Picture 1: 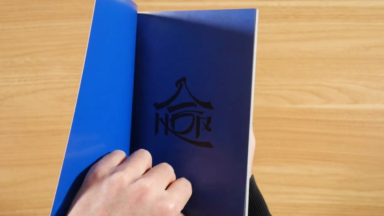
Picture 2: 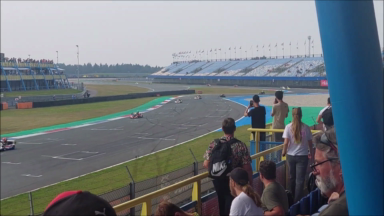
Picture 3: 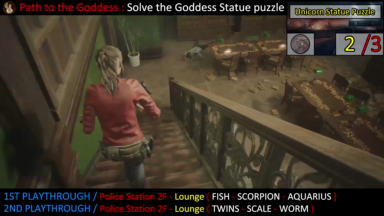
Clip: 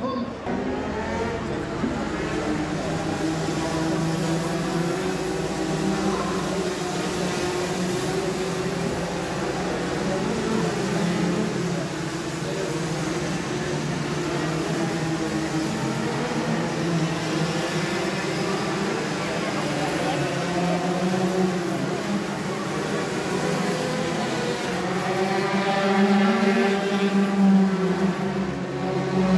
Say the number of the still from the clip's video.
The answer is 2